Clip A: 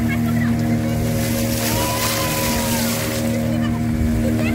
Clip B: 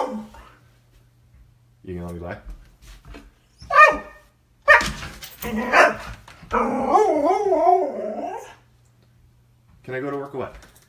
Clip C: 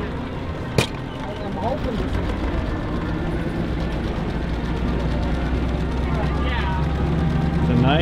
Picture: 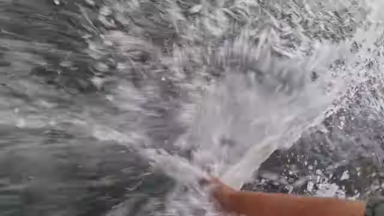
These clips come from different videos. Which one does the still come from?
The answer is A